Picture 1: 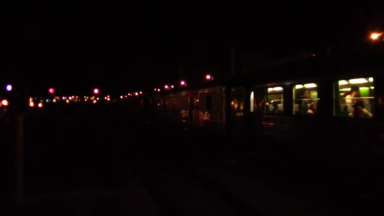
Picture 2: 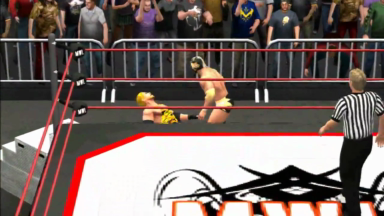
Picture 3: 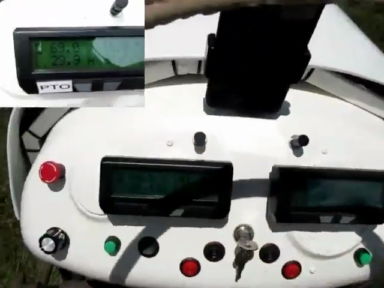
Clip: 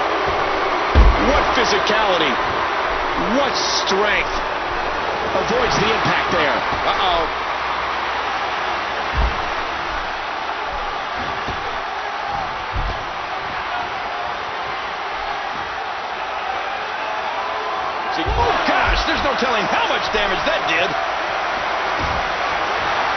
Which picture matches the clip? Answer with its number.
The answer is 2